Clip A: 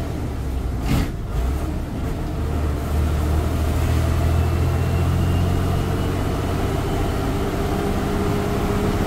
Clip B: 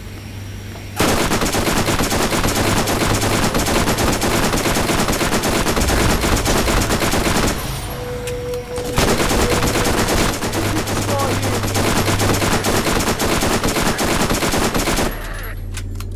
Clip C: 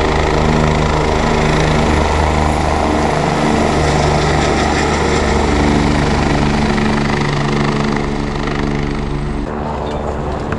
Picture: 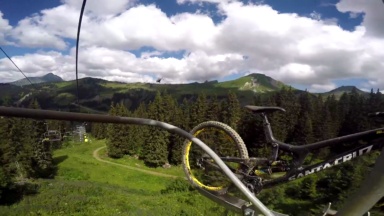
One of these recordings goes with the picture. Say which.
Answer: C